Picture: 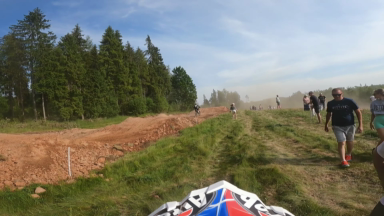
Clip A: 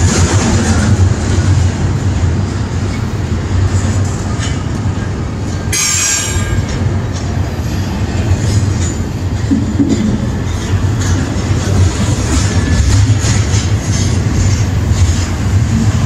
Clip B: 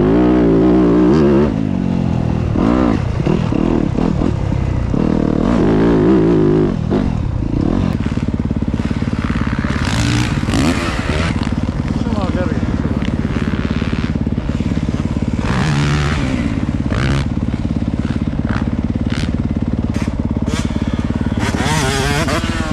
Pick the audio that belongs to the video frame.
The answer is B